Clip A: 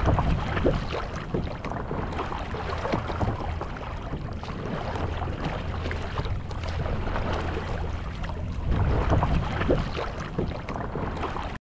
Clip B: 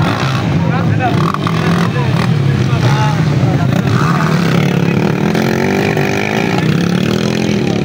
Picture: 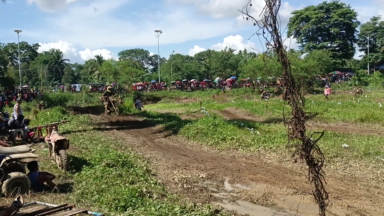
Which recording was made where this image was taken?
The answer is B